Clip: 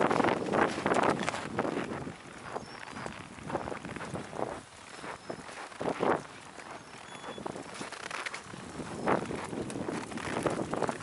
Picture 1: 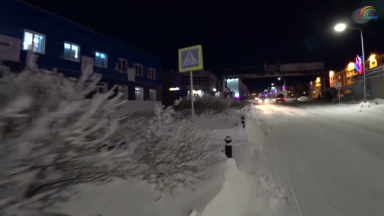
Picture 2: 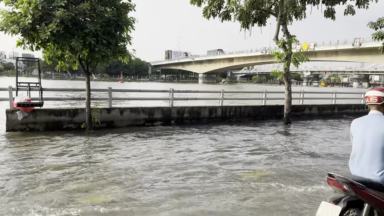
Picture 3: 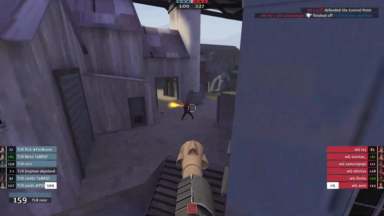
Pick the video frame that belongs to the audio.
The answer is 1